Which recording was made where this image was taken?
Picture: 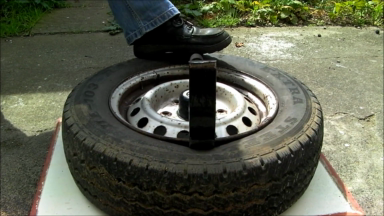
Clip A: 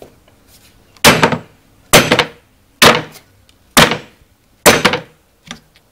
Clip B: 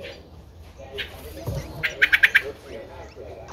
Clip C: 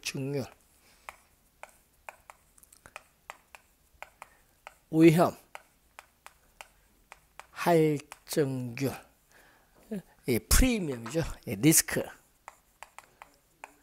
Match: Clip A